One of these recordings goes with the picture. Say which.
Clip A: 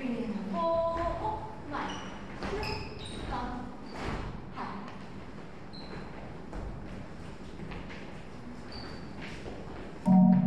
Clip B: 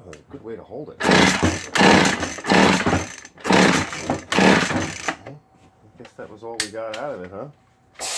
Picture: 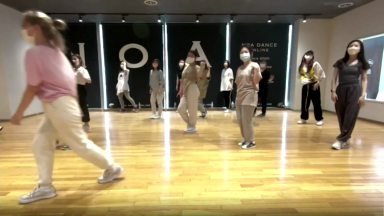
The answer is A